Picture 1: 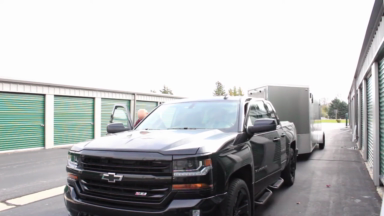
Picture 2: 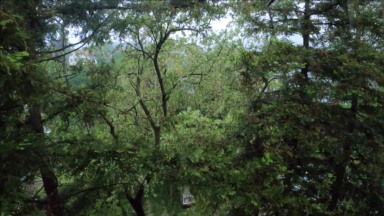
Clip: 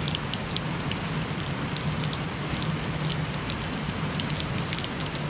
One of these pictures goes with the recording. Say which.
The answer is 2